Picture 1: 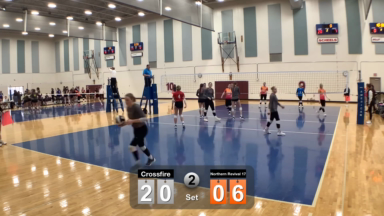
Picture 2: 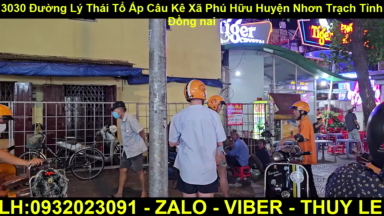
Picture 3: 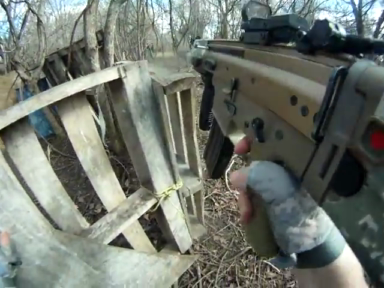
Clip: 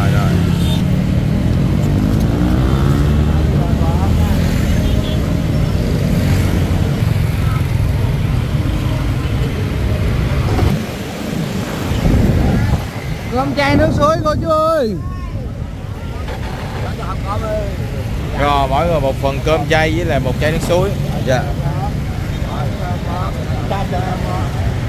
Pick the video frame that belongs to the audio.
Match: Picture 2